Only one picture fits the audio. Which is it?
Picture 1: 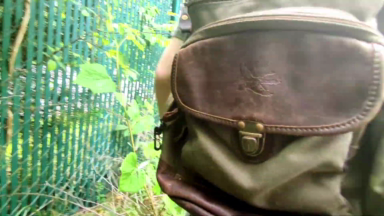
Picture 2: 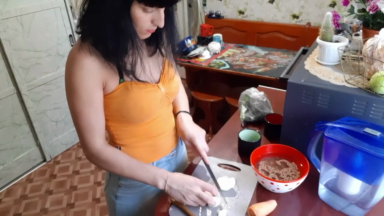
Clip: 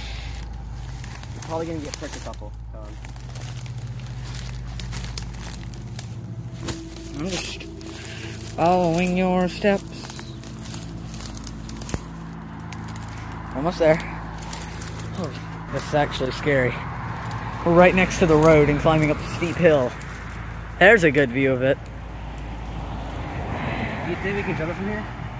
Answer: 1